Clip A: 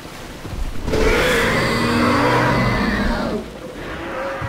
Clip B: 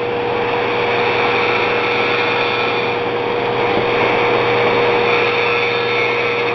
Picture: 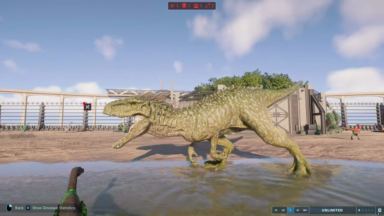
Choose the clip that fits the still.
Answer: A